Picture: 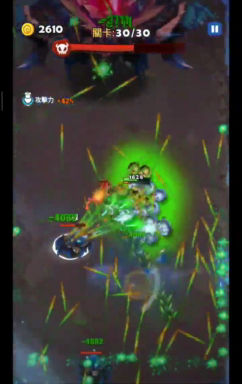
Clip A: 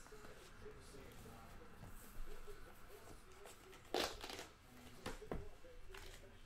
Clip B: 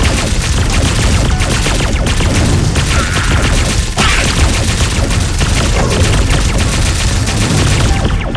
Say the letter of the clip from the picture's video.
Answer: B